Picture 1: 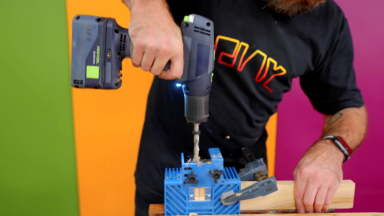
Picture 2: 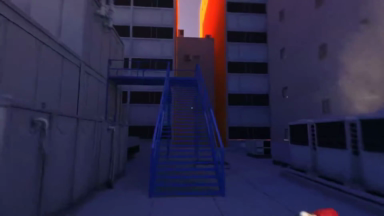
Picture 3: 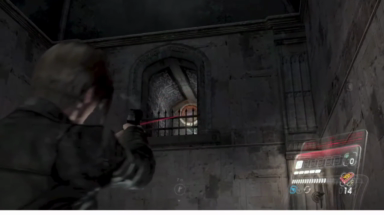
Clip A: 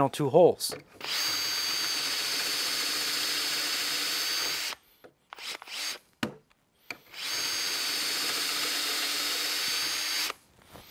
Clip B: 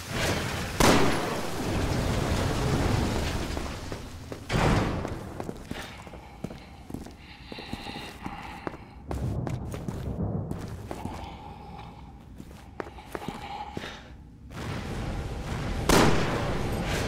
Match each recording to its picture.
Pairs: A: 1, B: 3